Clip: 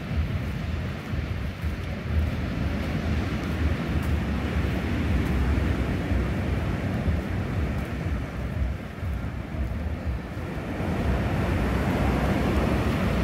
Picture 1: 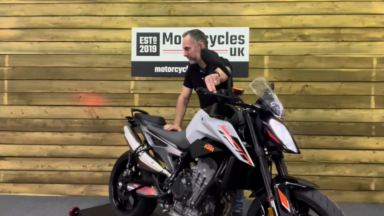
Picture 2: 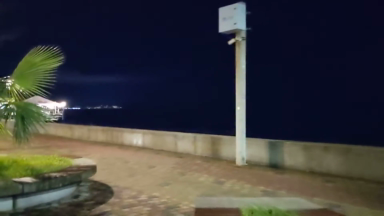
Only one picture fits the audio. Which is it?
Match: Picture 2